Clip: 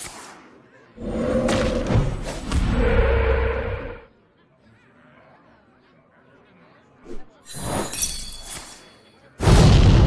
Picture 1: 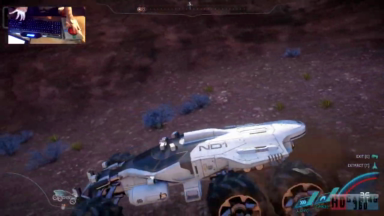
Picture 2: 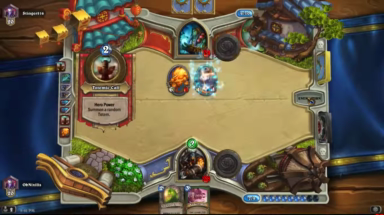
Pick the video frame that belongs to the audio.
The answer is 2